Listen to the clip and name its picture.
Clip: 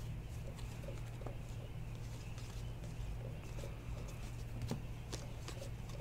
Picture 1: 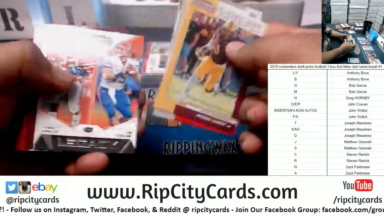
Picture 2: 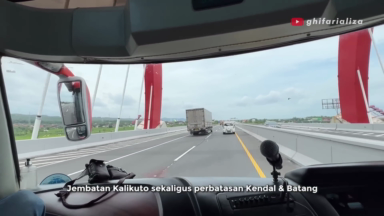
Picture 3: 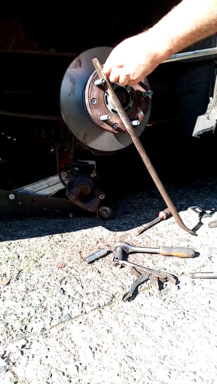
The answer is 1